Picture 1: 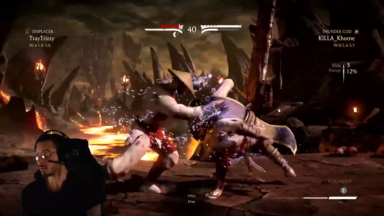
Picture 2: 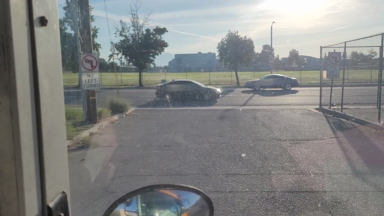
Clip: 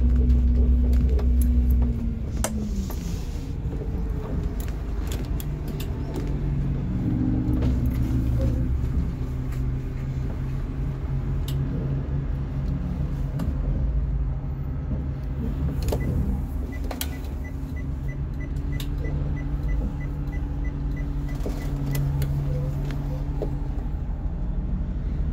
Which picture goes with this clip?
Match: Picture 2